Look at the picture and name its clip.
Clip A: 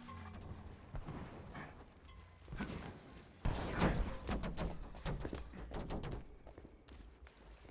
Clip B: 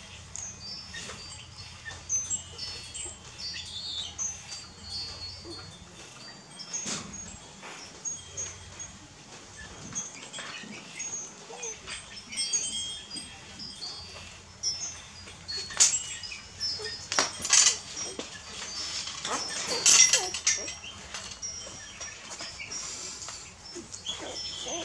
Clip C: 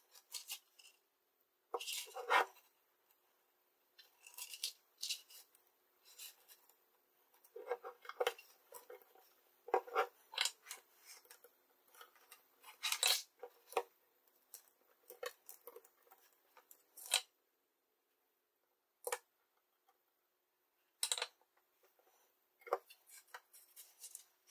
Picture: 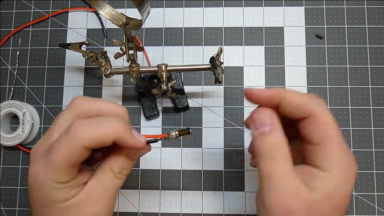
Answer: C